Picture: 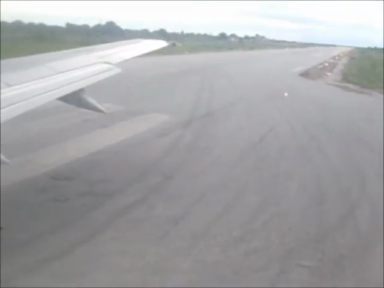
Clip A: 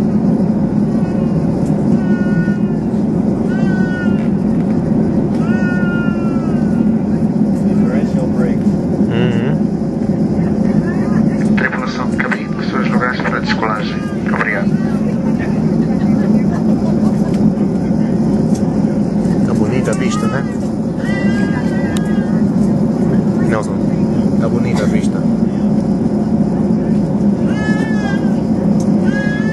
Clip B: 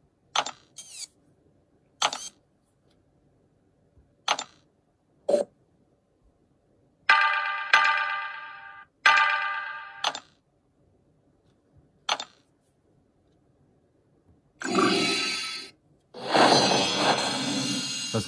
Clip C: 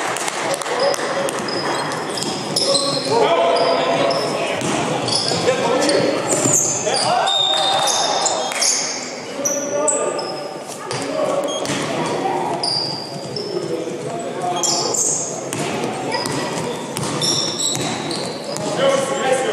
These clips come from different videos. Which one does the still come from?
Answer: A